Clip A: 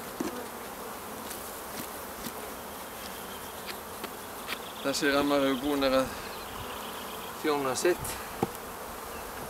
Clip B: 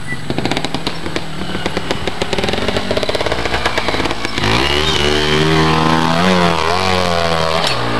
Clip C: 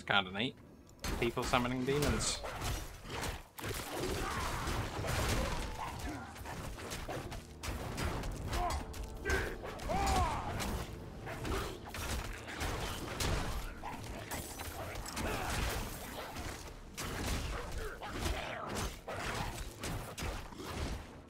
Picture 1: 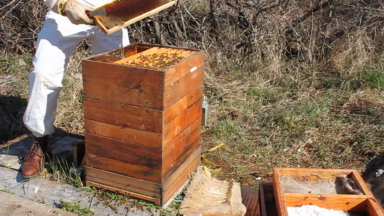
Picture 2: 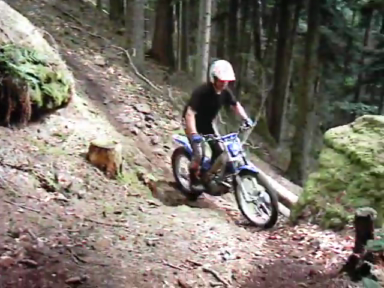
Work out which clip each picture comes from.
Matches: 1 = A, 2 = B